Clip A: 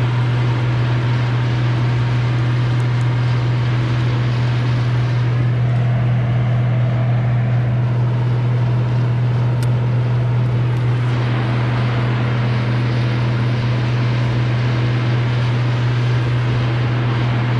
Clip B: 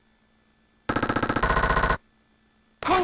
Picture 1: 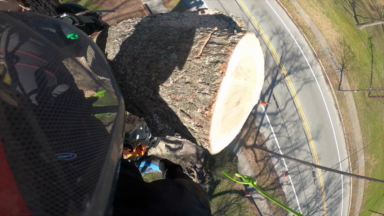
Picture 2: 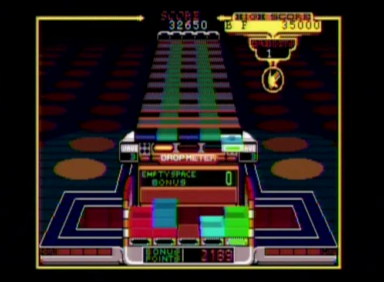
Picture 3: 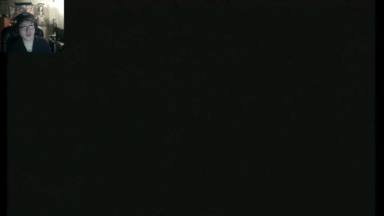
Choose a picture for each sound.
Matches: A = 1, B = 2